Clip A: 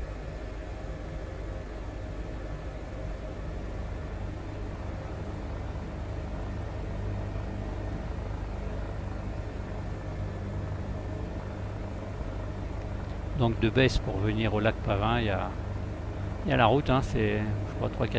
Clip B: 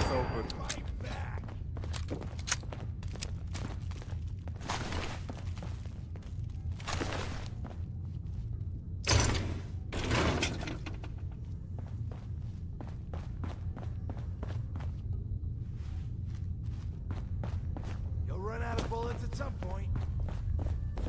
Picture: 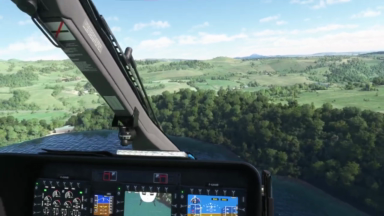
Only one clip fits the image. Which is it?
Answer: A